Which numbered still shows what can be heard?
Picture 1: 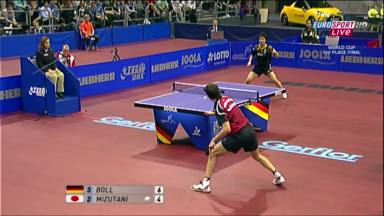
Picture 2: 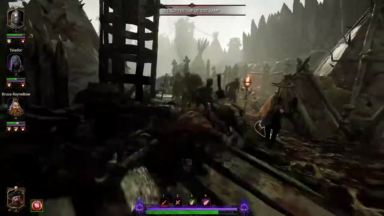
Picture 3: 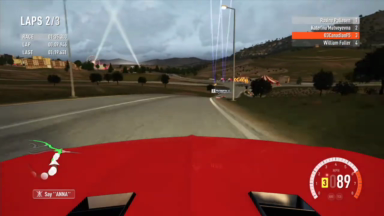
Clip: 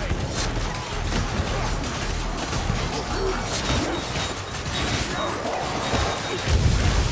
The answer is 2